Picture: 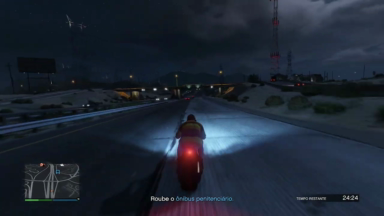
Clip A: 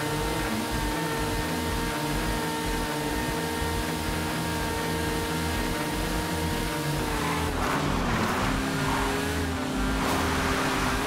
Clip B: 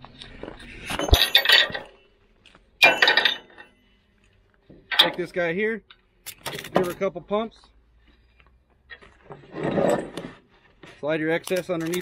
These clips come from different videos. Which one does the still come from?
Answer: A